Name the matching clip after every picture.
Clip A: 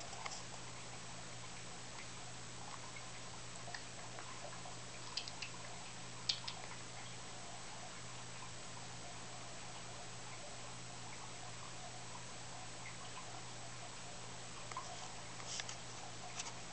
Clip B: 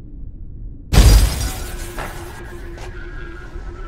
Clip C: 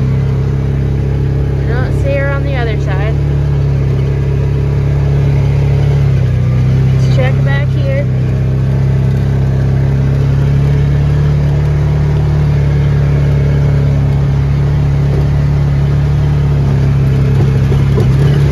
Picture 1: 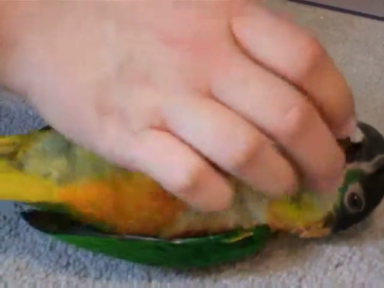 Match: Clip A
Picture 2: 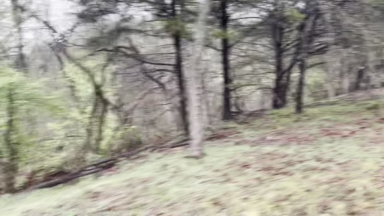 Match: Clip C